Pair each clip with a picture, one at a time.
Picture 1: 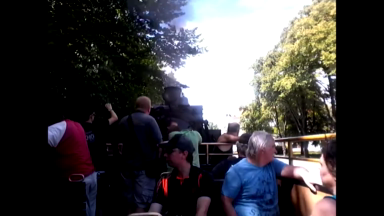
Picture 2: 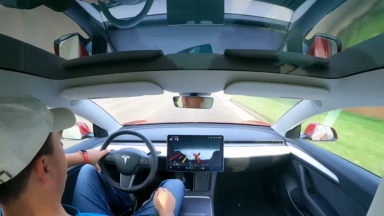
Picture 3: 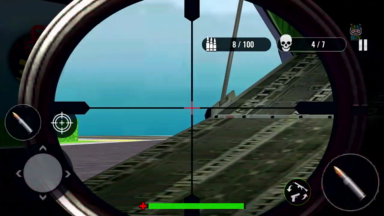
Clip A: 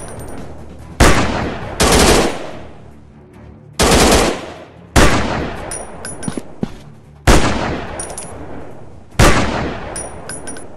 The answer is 3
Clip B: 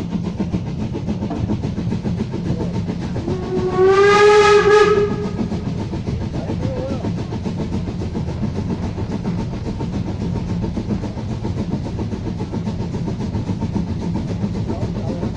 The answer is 1